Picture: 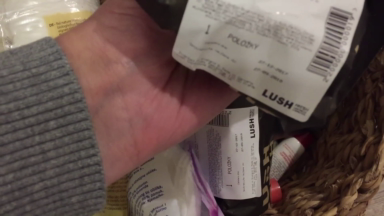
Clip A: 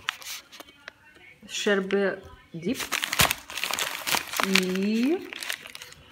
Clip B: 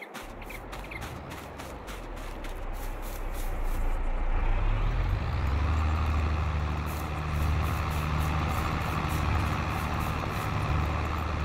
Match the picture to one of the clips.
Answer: A